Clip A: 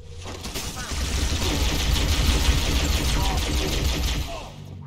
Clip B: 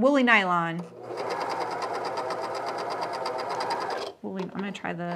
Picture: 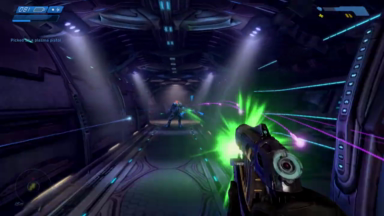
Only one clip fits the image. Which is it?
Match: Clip A